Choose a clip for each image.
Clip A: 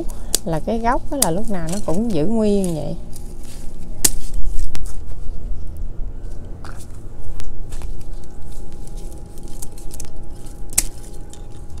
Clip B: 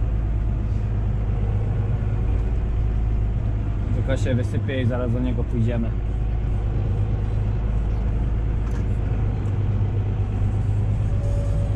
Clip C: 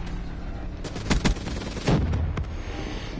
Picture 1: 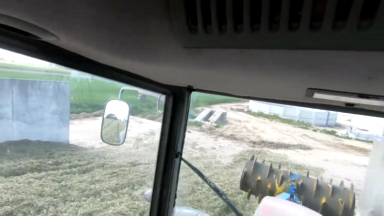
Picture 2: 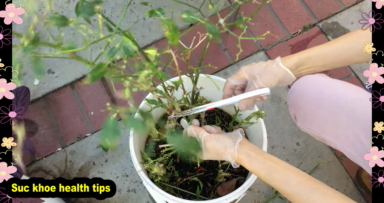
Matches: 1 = B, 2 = A